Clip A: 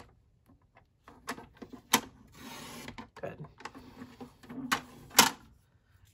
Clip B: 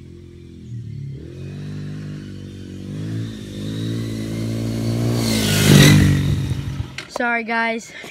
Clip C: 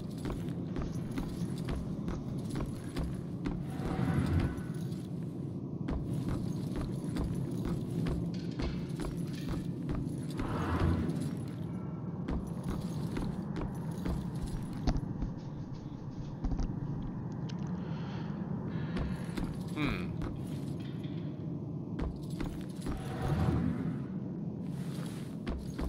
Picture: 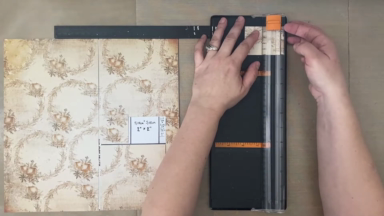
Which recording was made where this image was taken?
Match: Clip A